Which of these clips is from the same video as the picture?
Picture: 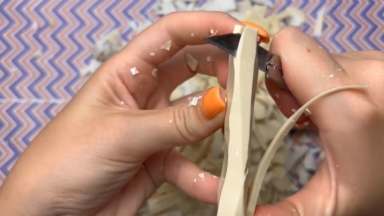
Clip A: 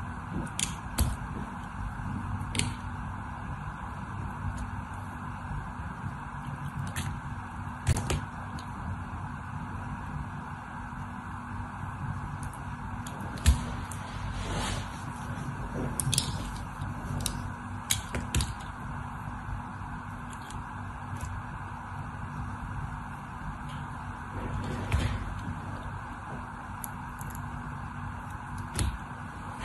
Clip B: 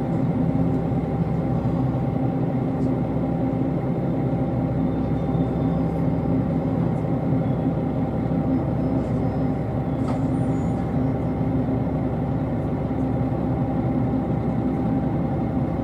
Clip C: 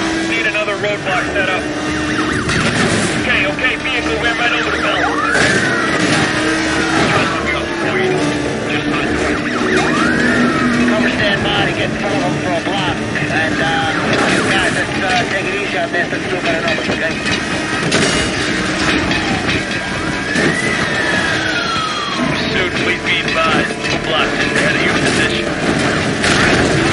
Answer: A